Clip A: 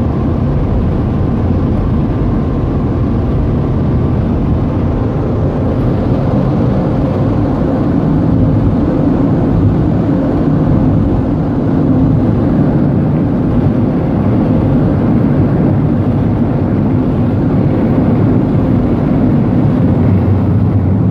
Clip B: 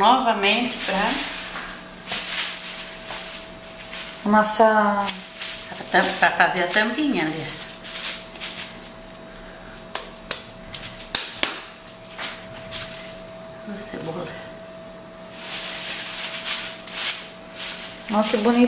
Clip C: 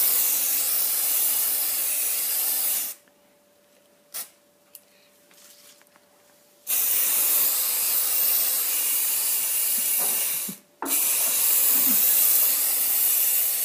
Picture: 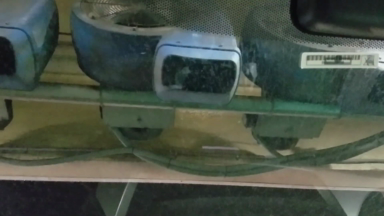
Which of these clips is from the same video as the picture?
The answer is A